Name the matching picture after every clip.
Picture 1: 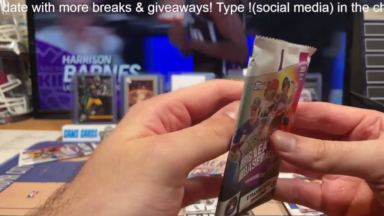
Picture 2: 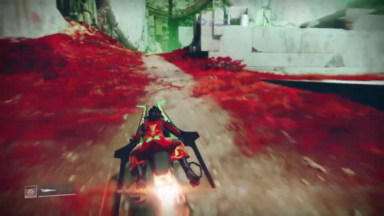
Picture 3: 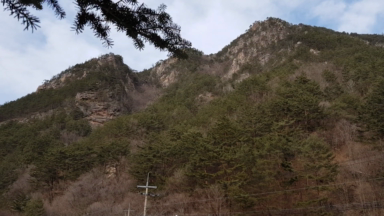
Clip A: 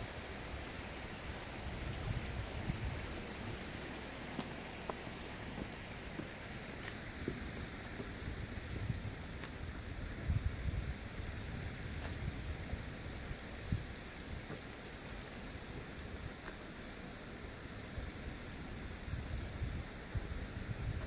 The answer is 3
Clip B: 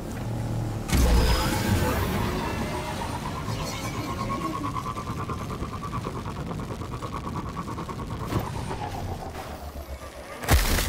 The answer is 2